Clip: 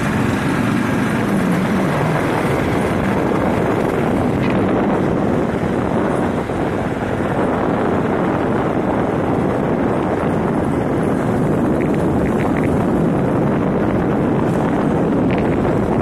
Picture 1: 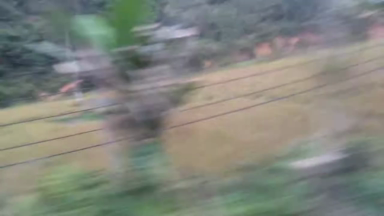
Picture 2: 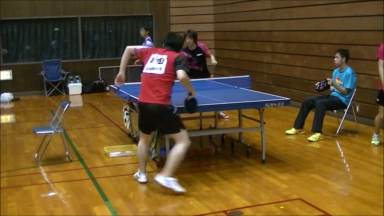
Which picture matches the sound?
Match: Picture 1